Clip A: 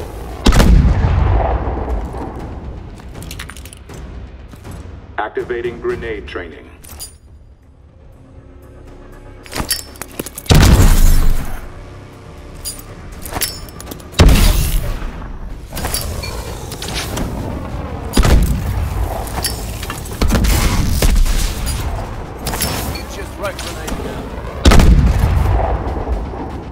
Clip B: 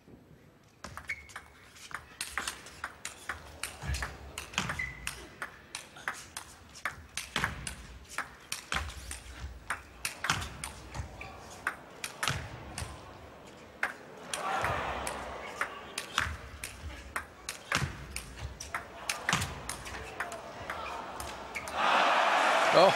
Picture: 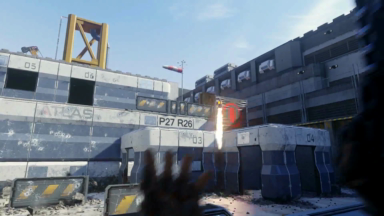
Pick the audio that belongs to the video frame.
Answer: A